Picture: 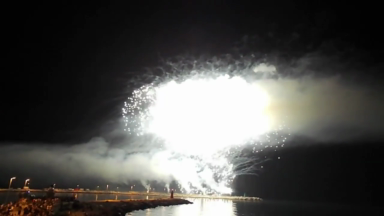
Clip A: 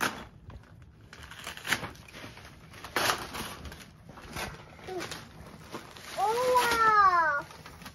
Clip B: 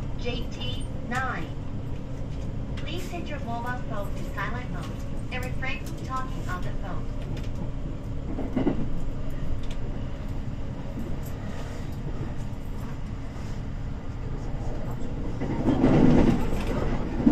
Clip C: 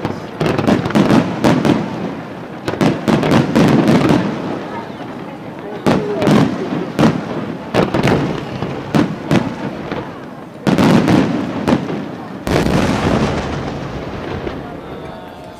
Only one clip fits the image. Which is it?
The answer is C